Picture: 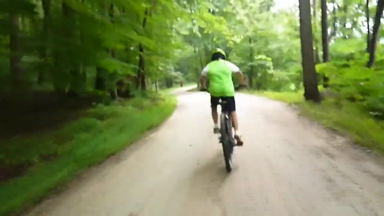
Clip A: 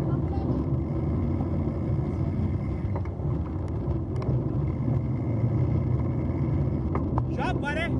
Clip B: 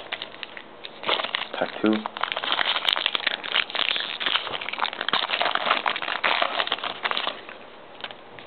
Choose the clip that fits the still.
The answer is A